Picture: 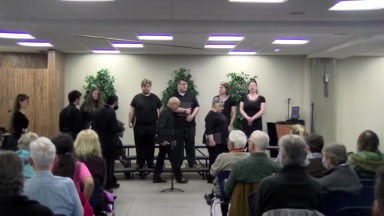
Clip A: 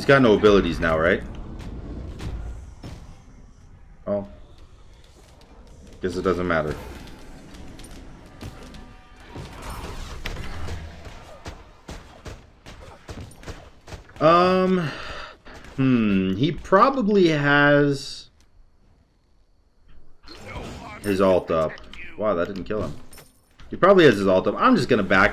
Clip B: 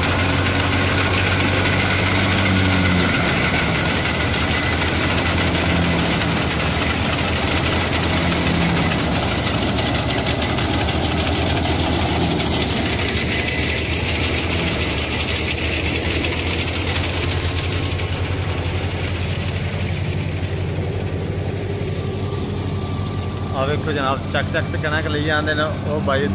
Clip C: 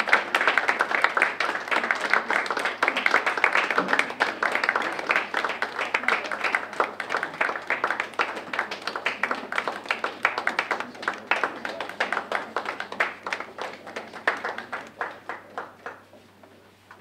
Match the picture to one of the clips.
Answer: C